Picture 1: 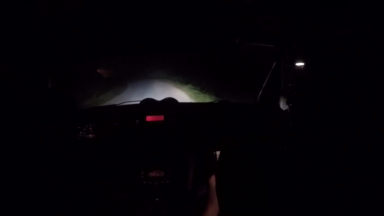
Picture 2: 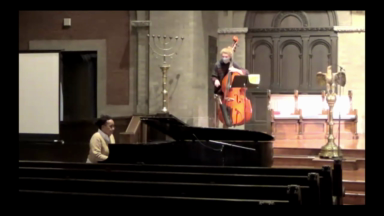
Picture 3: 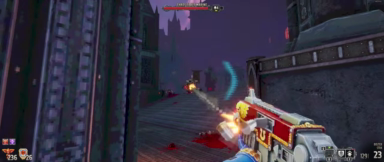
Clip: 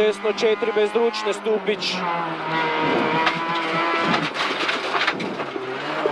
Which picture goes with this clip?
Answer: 1